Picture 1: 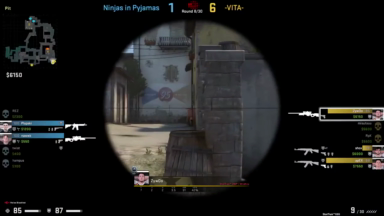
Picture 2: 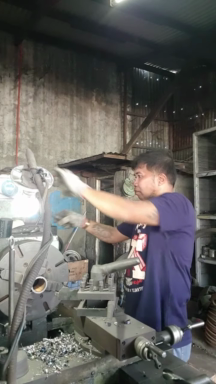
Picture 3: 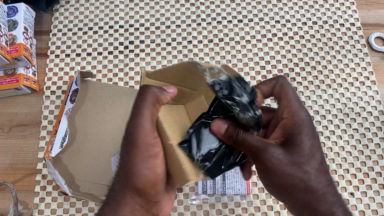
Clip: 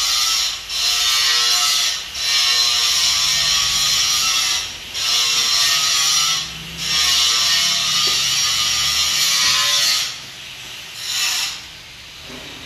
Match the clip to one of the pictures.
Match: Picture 2